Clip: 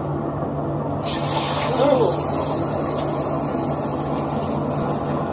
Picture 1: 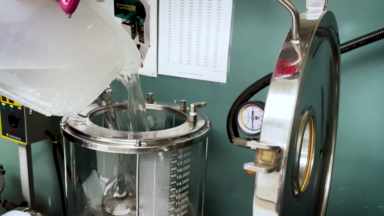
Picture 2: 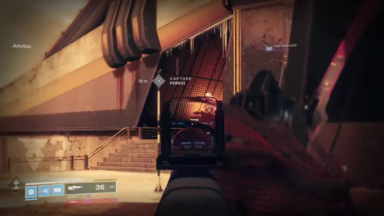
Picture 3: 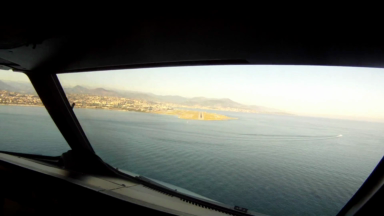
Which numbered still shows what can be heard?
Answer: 1